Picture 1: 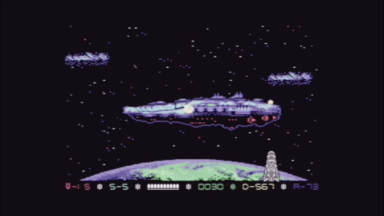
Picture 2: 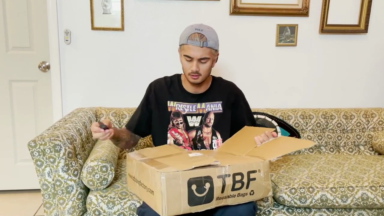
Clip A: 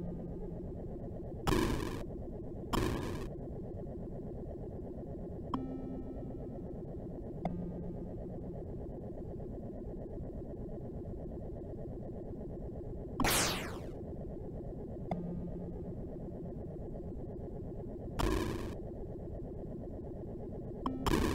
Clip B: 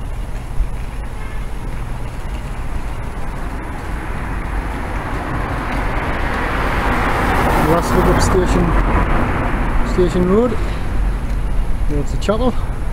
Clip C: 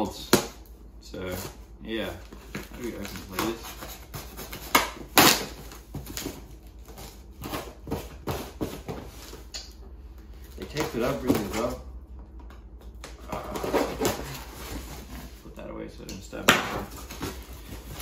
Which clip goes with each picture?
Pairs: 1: A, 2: C